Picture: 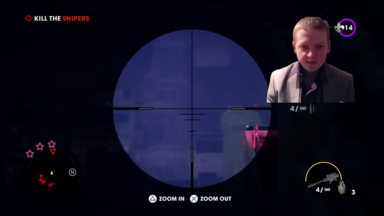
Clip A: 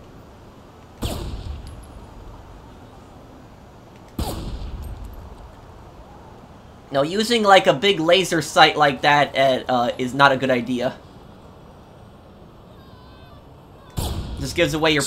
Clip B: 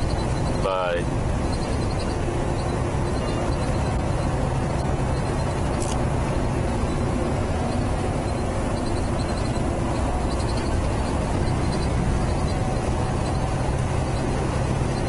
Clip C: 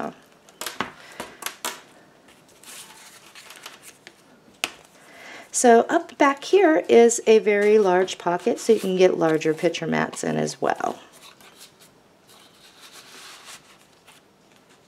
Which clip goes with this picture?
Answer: A